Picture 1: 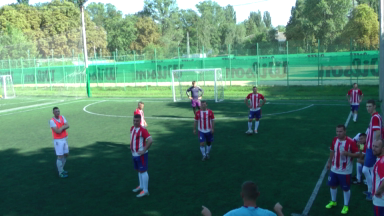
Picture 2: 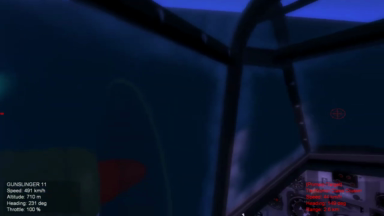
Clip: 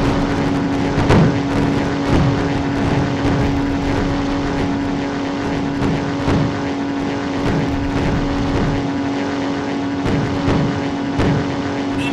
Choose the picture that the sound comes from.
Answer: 2